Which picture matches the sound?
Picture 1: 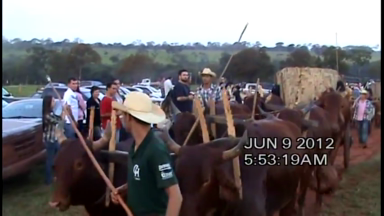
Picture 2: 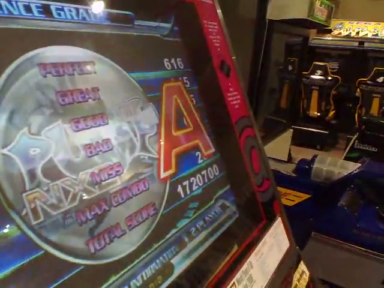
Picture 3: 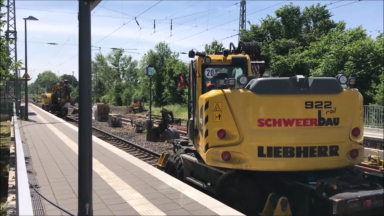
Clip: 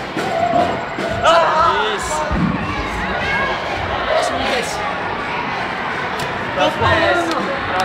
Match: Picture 2